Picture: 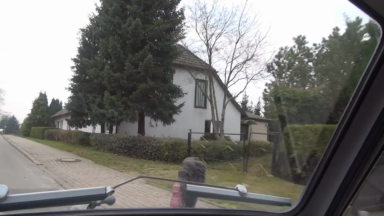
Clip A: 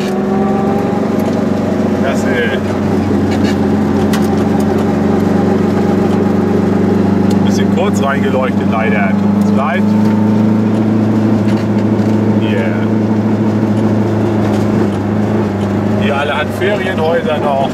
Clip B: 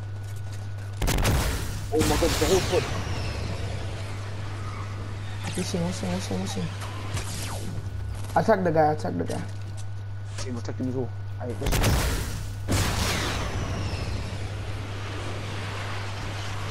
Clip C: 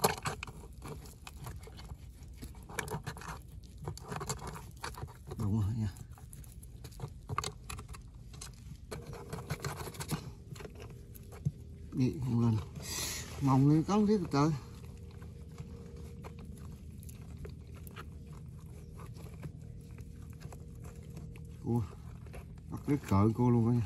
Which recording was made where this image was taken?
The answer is A